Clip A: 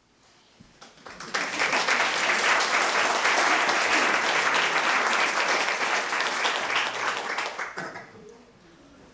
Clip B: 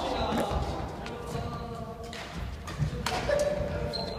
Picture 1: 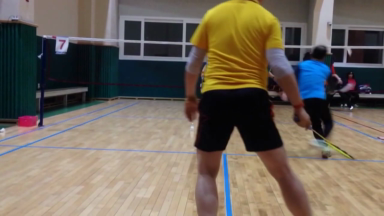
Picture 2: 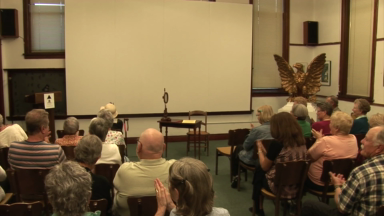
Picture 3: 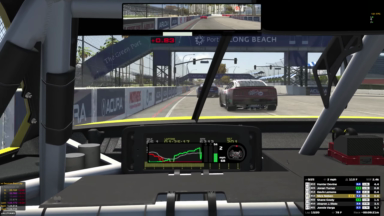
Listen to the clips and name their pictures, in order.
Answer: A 2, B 1